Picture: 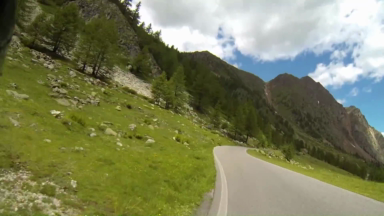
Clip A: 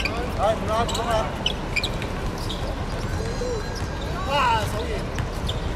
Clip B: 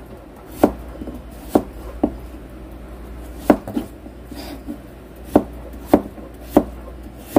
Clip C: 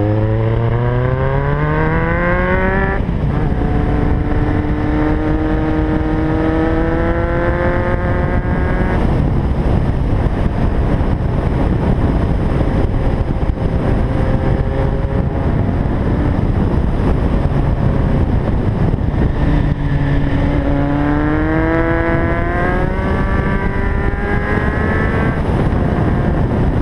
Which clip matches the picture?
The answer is C